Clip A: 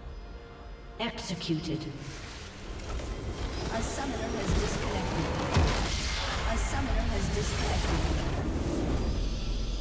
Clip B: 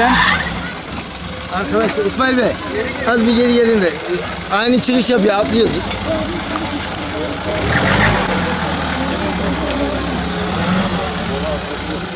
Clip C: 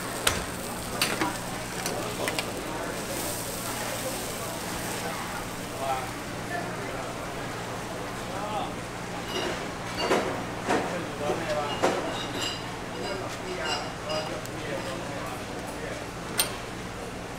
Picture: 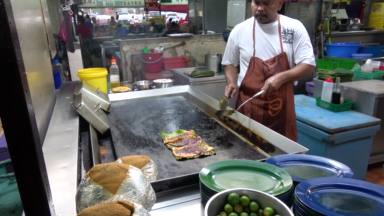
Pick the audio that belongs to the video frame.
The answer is C